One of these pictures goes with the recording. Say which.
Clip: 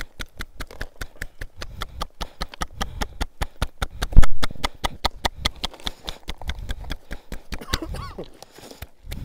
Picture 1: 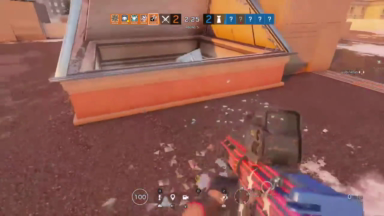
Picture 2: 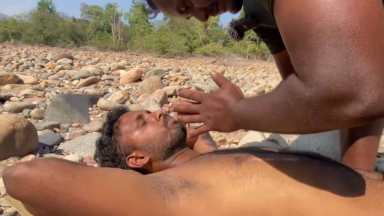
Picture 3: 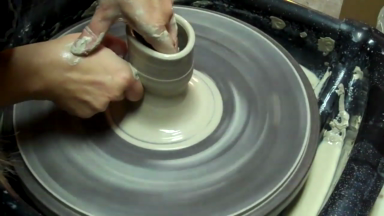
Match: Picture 2